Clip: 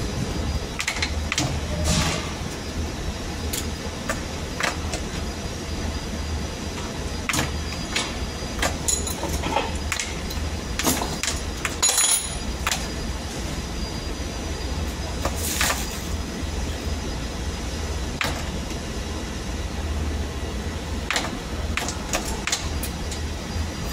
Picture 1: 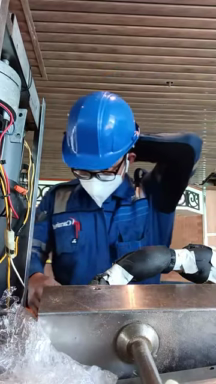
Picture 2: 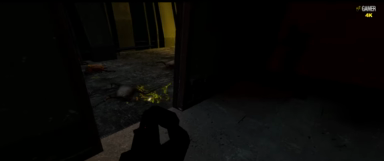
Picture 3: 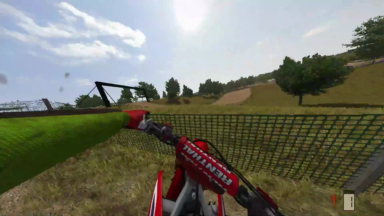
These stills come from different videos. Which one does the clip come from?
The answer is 1